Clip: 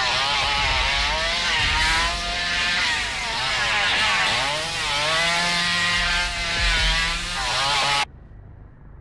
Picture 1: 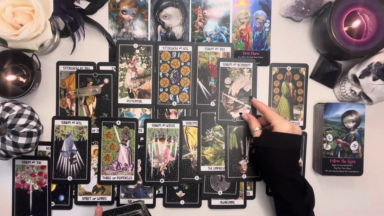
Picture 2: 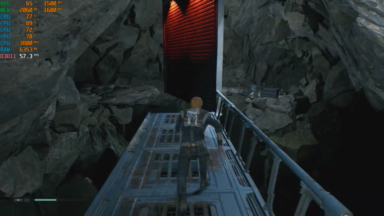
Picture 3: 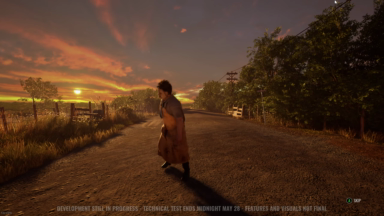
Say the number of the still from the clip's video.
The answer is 3